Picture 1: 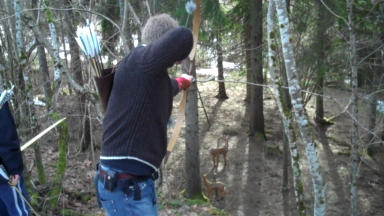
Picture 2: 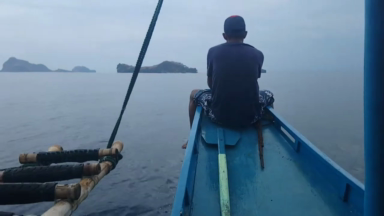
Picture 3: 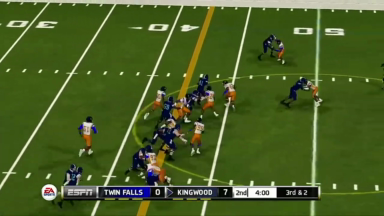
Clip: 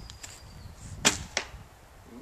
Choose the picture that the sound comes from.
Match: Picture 1